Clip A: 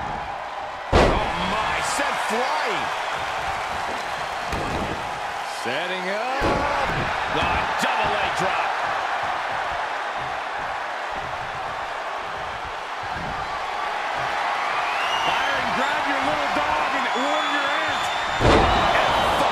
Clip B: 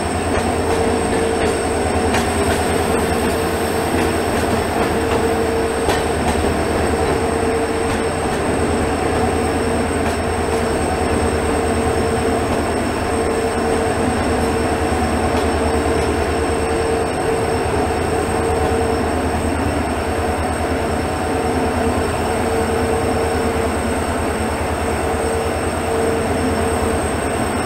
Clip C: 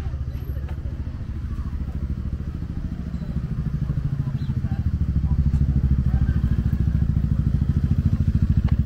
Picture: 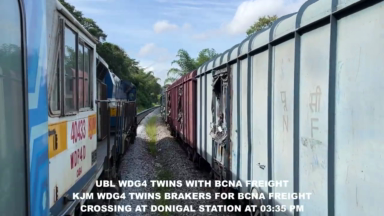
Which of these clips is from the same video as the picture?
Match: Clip B